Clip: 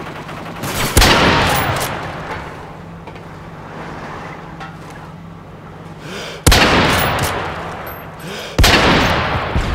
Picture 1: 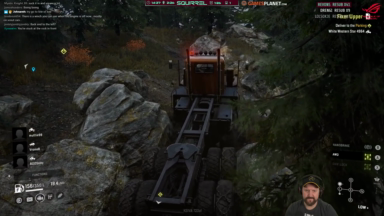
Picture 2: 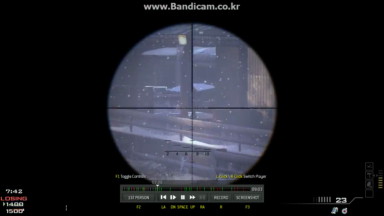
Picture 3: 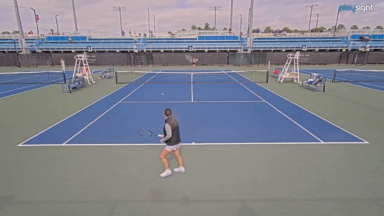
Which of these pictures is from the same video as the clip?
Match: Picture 2